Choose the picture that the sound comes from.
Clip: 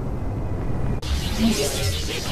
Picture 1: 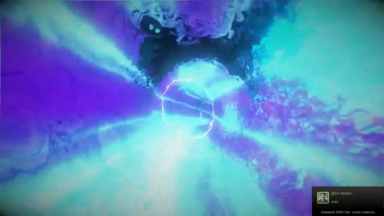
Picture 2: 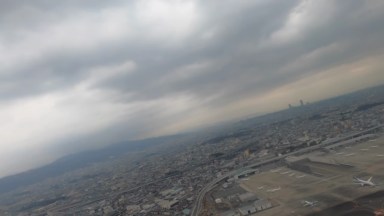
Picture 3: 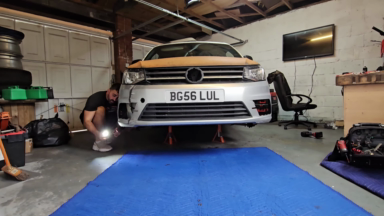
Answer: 1